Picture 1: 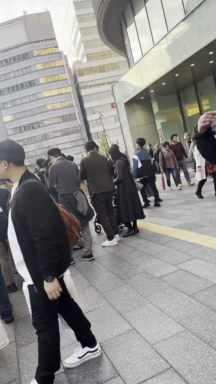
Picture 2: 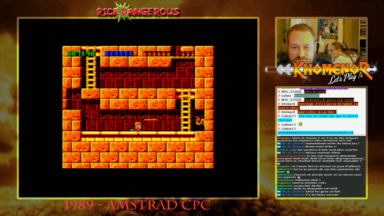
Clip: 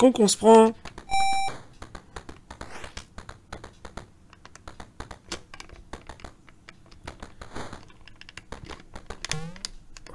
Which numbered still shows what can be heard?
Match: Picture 2